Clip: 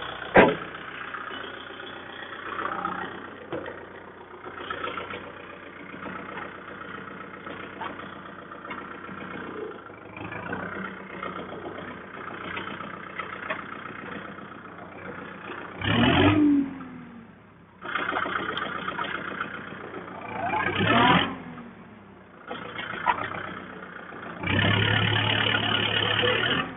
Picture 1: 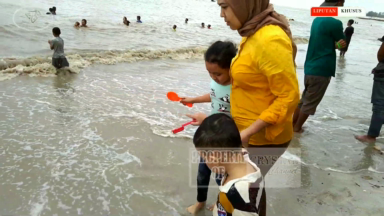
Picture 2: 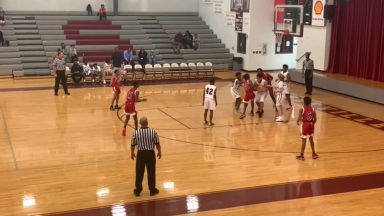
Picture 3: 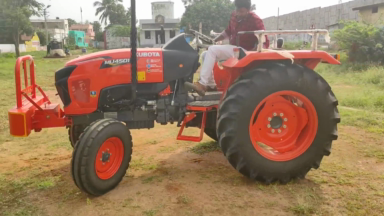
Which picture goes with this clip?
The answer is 3